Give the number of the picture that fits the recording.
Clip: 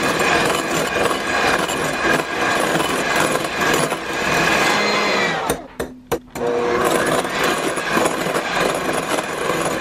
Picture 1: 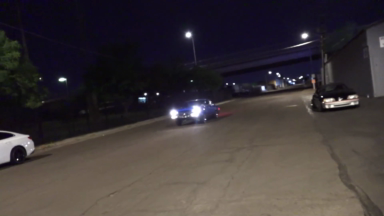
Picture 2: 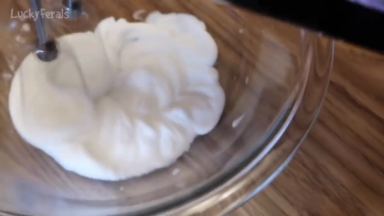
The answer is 2